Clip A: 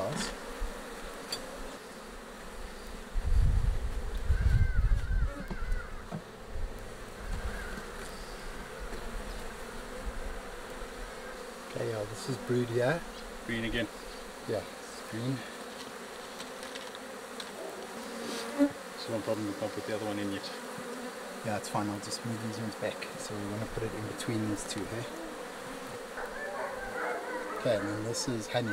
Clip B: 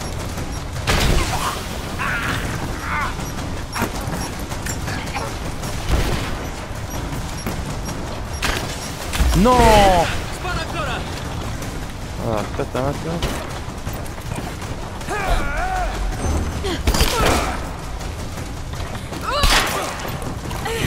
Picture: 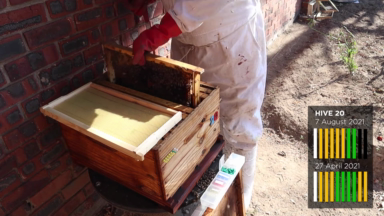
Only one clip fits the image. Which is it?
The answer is A